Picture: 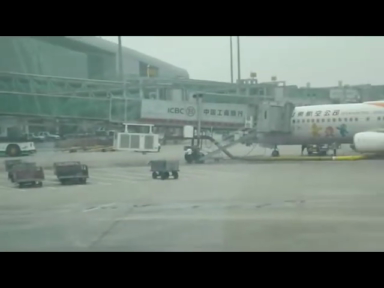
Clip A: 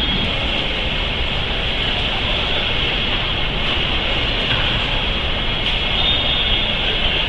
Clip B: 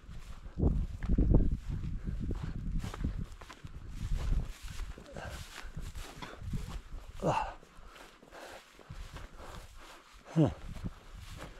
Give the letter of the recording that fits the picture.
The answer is A